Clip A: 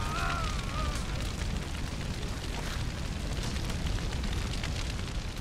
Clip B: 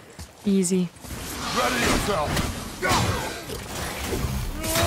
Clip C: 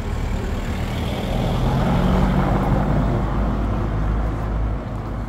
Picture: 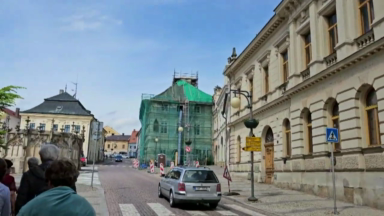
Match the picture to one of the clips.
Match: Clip C